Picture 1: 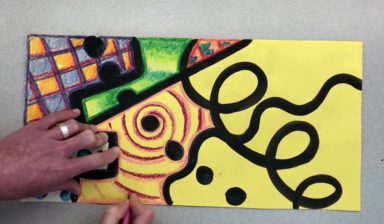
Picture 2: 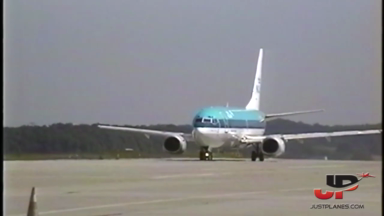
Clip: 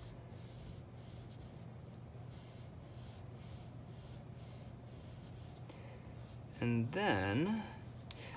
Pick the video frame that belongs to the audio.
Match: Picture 1